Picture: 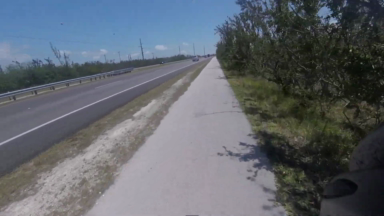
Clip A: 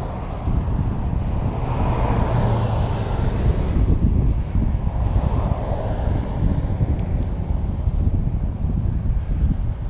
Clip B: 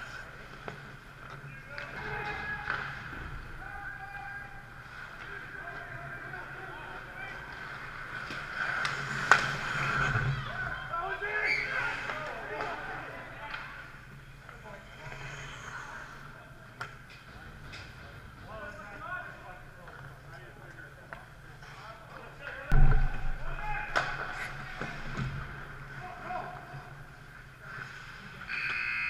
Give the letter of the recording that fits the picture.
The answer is A